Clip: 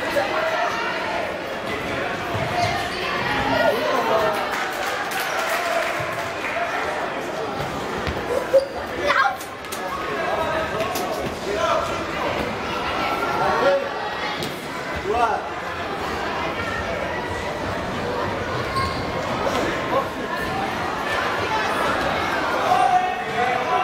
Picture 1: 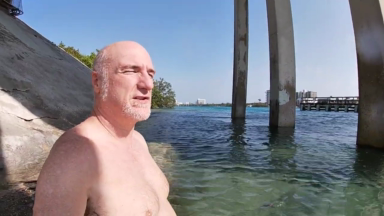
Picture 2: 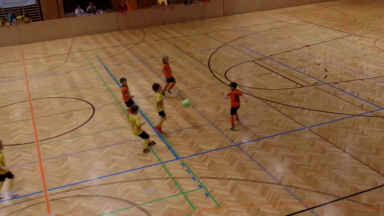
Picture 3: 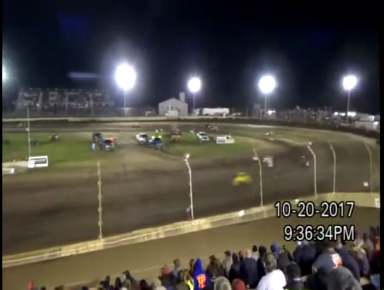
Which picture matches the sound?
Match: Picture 2